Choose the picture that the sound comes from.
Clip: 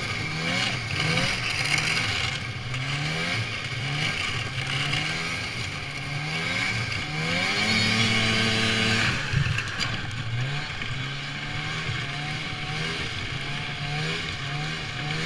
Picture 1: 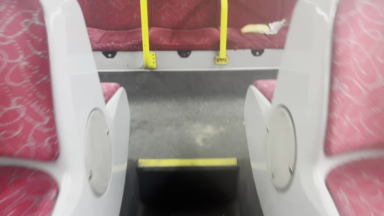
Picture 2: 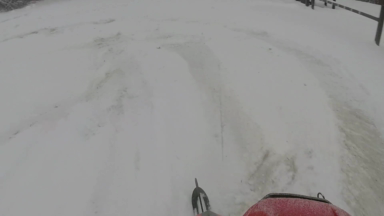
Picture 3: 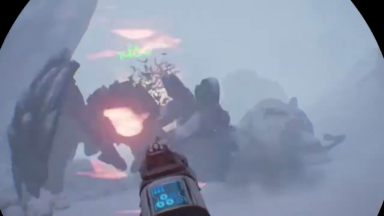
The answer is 2